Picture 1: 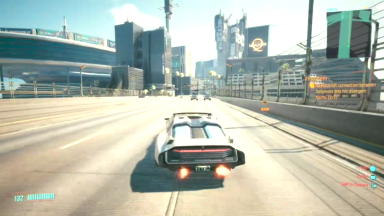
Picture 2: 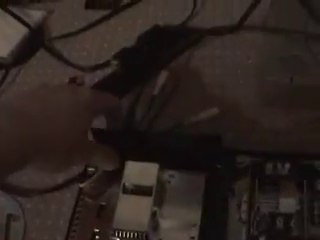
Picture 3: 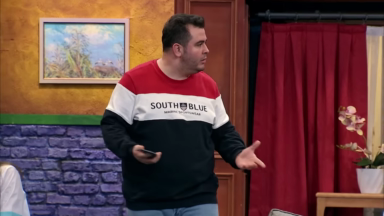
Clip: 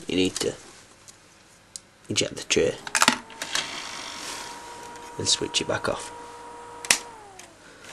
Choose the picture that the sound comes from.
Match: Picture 2